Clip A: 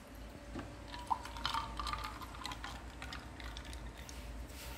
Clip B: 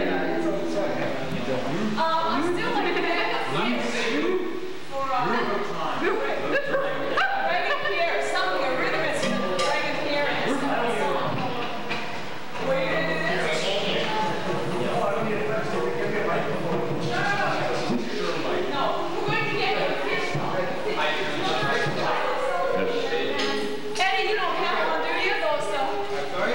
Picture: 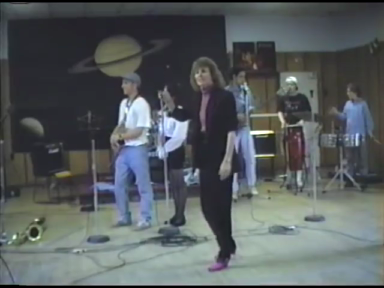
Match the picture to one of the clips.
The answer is B